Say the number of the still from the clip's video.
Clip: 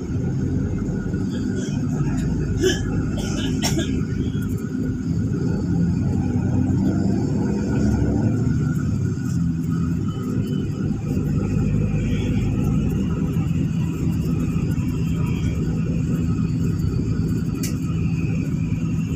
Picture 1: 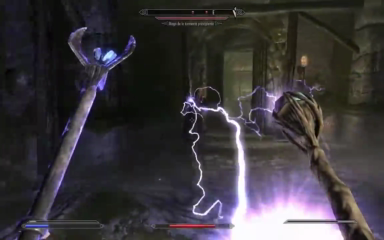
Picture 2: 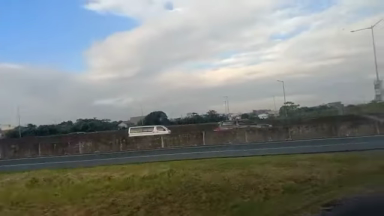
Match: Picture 2